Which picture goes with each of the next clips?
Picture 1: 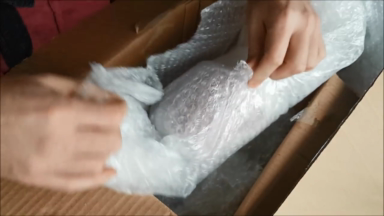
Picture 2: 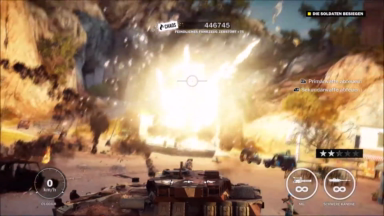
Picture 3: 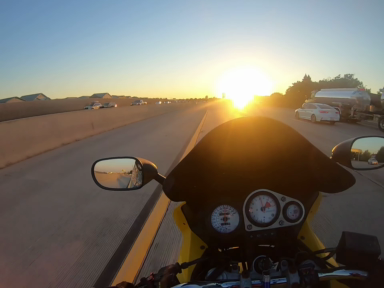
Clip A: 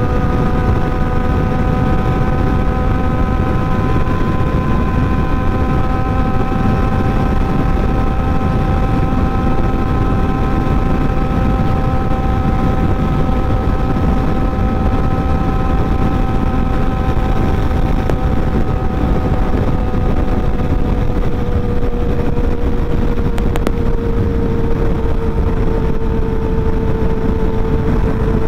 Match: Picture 3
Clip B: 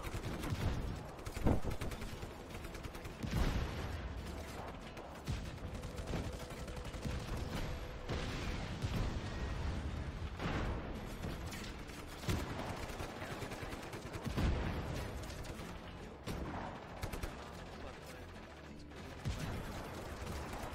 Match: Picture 2